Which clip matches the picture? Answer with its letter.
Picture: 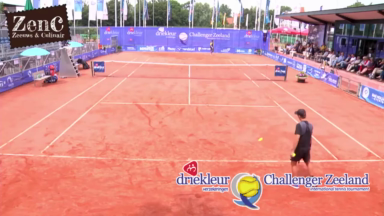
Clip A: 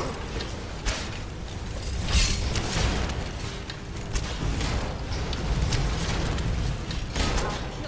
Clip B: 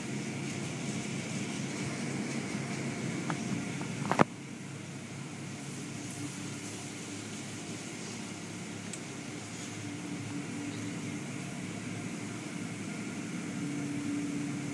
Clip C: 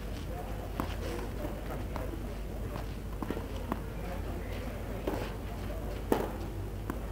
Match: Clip C